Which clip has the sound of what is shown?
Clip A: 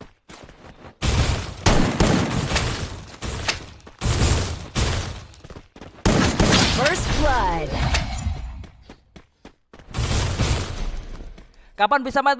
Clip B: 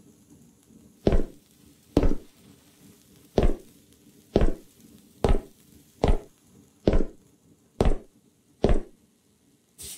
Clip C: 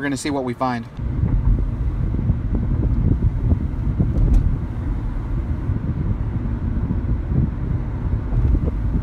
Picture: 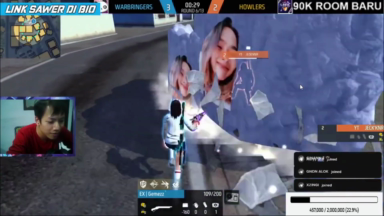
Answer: A